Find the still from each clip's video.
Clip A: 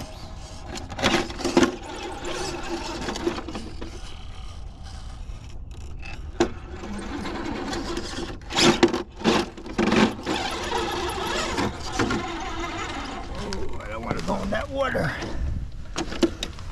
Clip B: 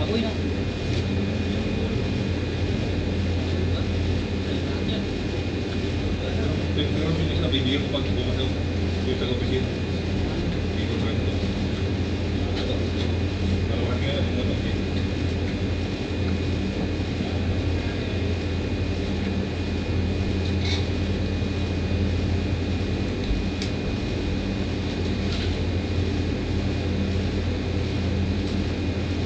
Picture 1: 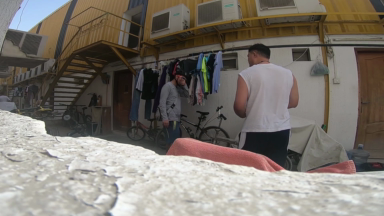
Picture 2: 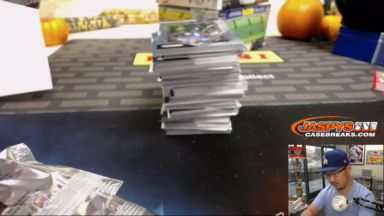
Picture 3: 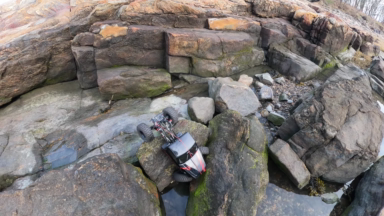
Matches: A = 3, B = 1